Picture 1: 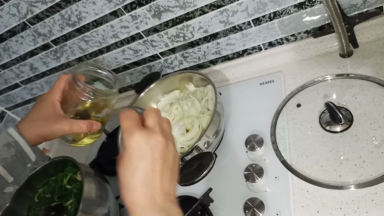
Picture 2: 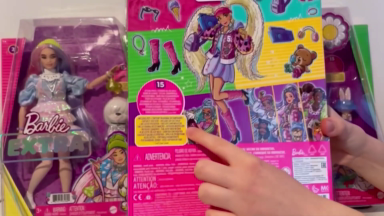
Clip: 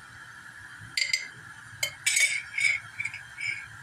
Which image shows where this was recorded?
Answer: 1